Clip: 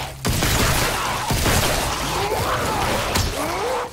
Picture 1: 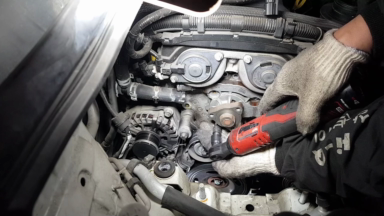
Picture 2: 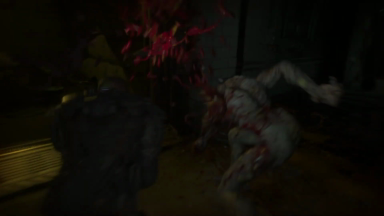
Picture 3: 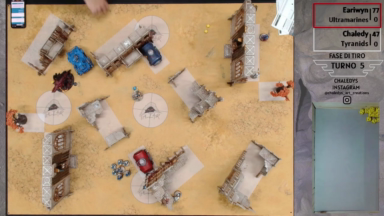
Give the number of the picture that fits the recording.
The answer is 2